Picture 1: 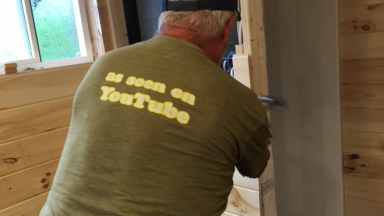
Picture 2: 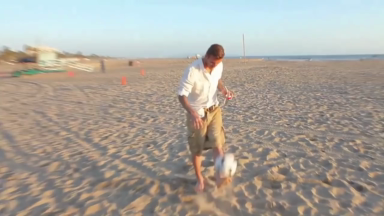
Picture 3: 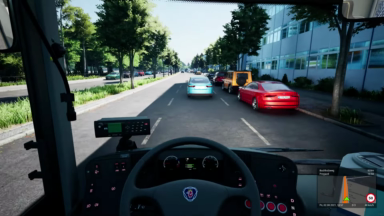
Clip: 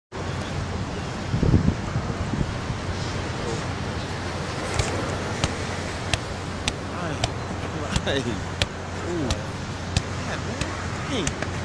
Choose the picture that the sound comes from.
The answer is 2